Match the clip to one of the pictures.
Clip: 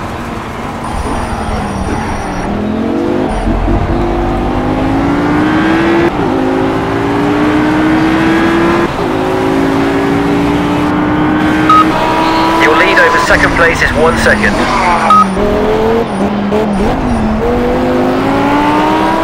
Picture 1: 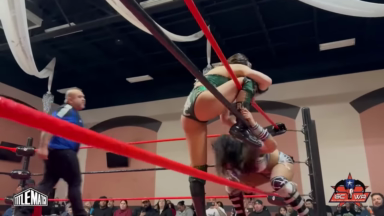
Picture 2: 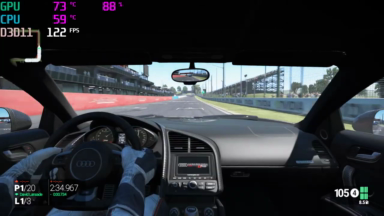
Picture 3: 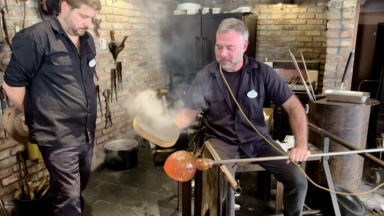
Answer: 2